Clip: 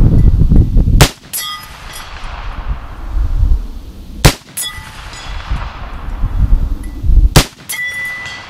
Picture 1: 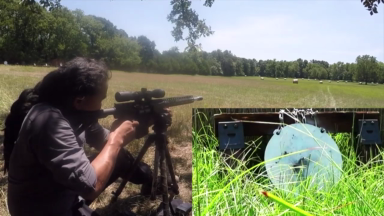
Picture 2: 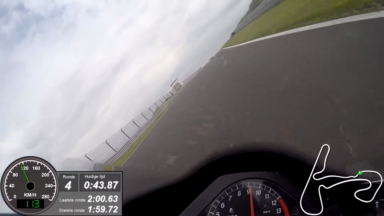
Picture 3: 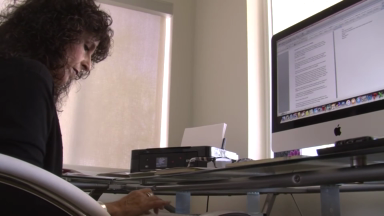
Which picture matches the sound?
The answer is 1